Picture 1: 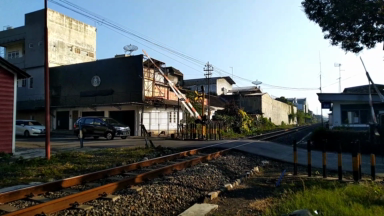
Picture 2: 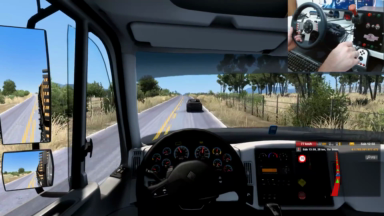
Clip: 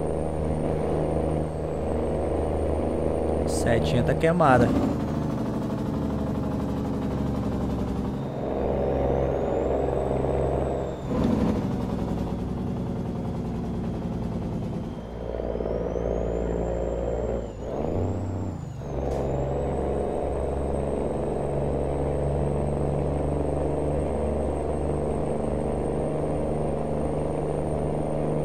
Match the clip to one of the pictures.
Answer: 2